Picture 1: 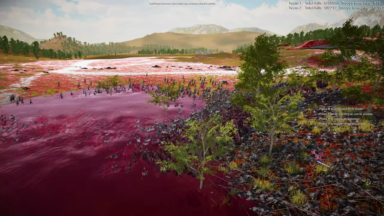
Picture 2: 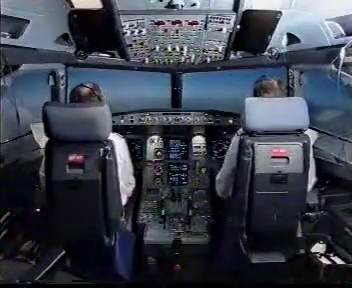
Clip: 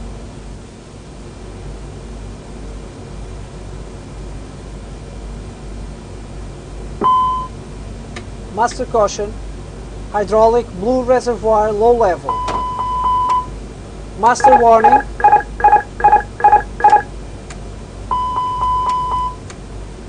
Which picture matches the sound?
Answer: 2